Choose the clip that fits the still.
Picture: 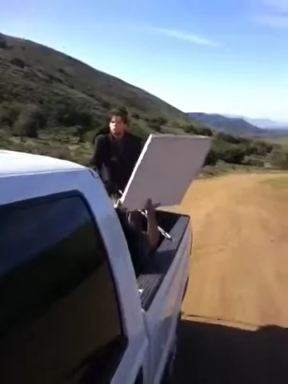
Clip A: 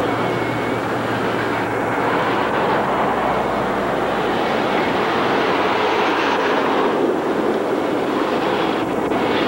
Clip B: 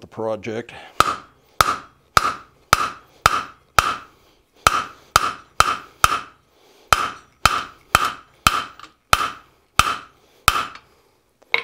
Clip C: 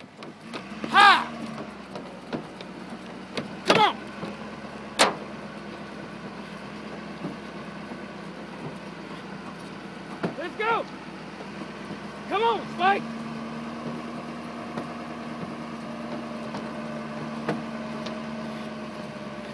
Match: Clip C